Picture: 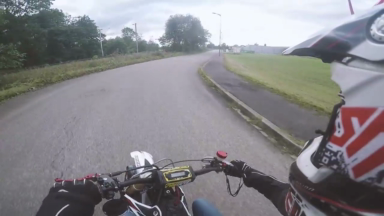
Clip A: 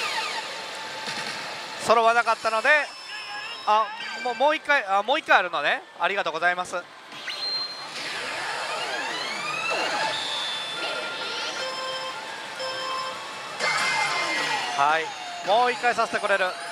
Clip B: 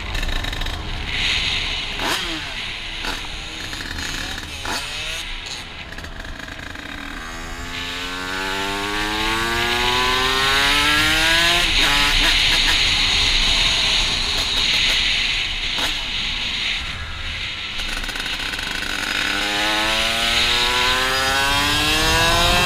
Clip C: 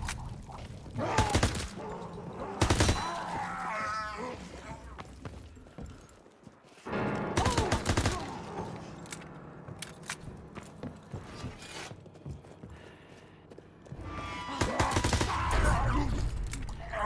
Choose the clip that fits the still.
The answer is B